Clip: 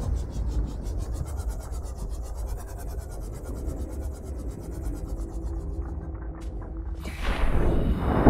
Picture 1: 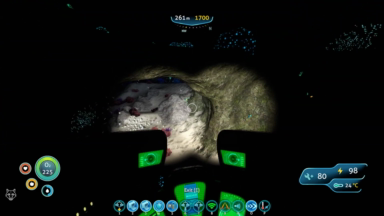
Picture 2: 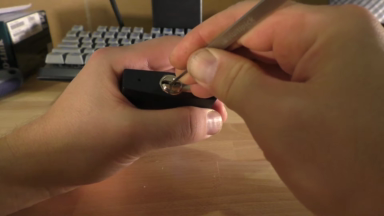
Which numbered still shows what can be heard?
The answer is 1